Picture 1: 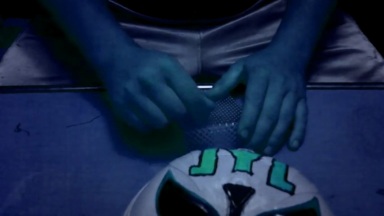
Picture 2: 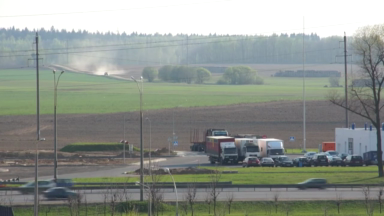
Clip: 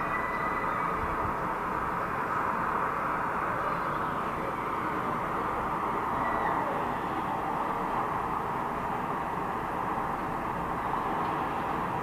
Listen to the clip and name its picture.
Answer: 2